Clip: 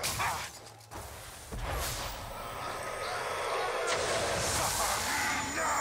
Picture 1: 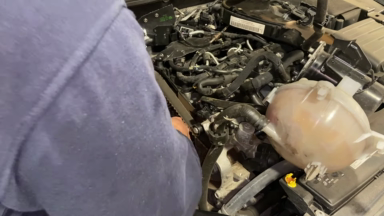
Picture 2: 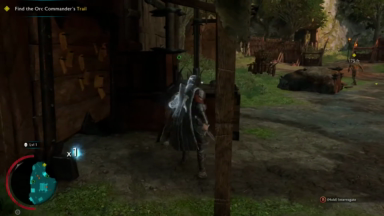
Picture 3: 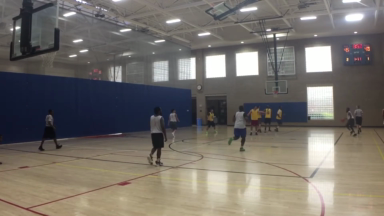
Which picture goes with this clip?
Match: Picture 2